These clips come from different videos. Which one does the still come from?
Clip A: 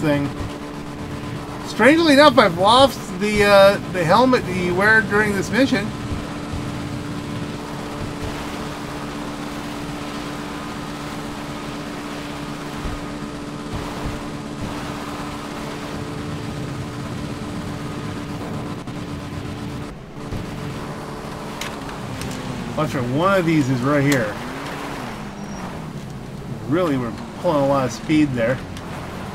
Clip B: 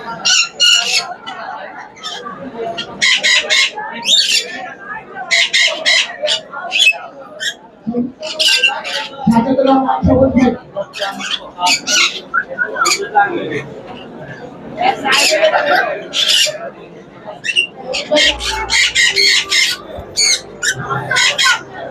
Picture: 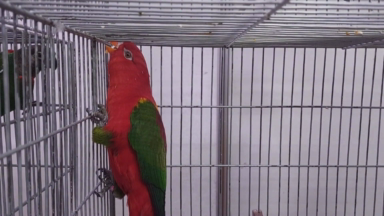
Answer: B